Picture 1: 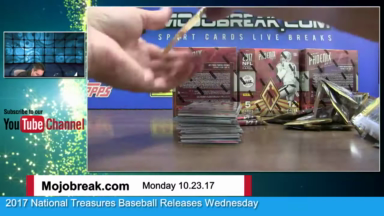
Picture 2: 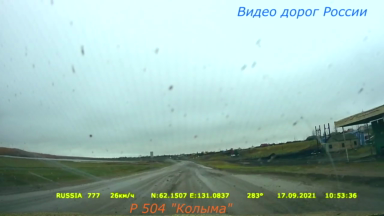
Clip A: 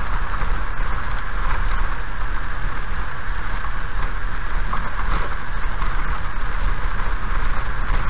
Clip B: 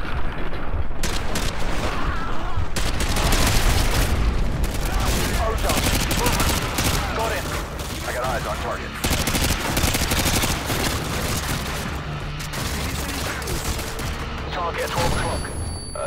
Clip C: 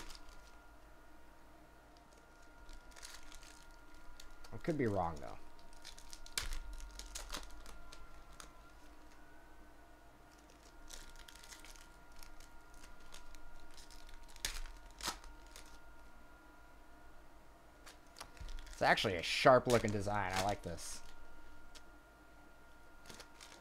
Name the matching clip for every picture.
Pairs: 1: C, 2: A